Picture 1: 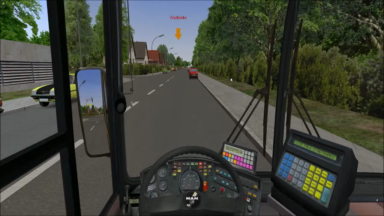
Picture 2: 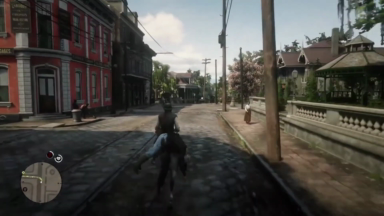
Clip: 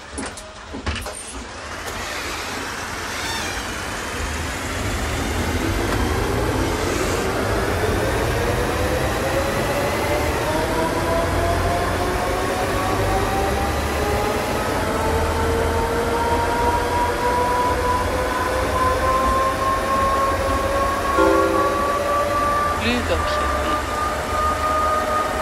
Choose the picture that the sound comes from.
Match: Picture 1